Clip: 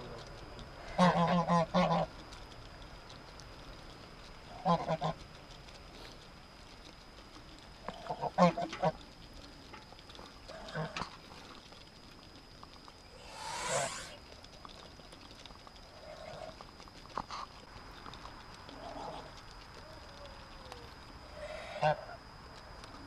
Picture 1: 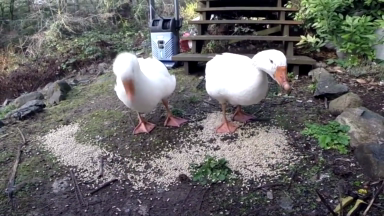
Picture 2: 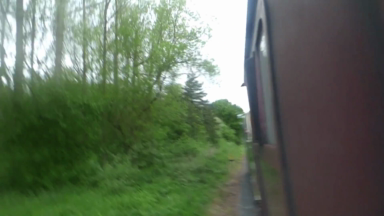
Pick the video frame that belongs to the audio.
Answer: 1